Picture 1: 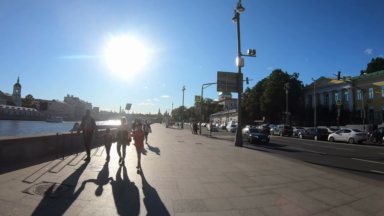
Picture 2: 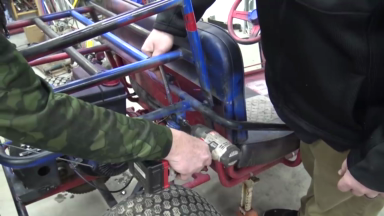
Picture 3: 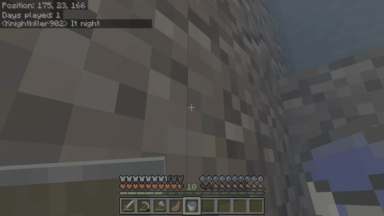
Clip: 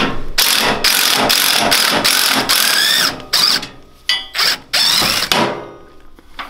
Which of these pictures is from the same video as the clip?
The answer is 2